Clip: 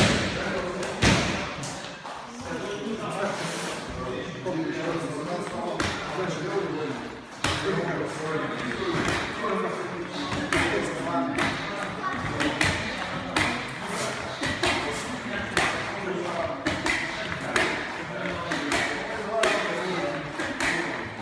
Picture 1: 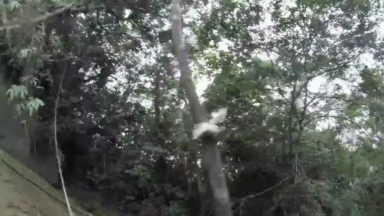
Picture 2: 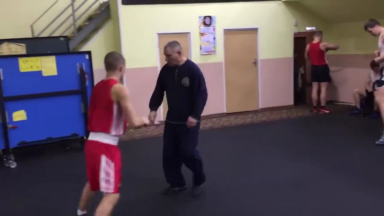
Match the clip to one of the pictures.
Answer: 2